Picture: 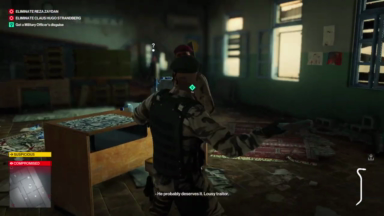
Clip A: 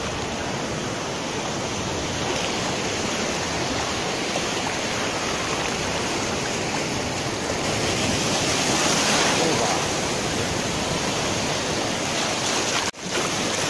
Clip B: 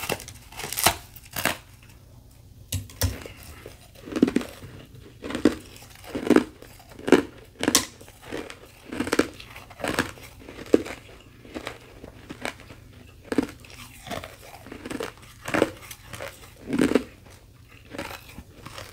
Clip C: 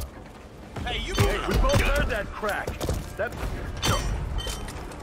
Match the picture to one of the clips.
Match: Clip C